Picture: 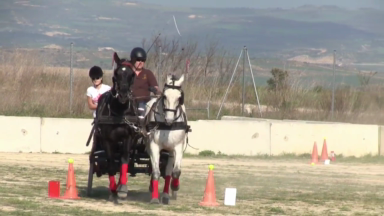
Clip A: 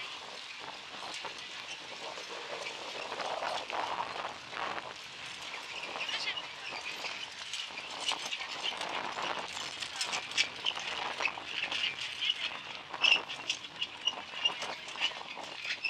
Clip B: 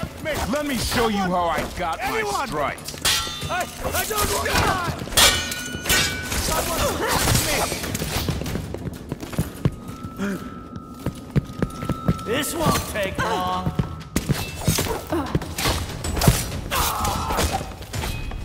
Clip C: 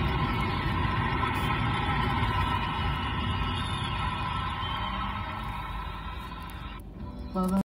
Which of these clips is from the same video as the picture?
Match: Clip A